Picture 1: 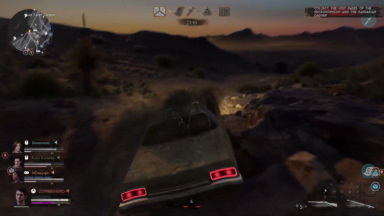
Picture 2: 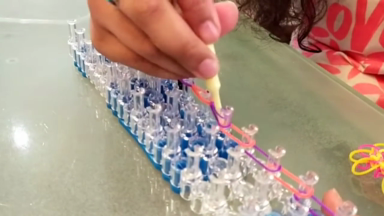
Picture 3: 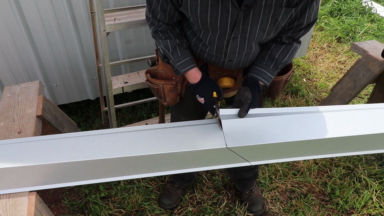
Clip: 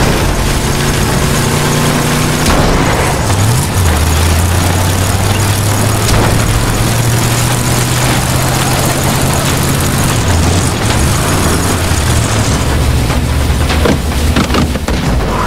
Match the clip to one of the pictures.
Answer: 1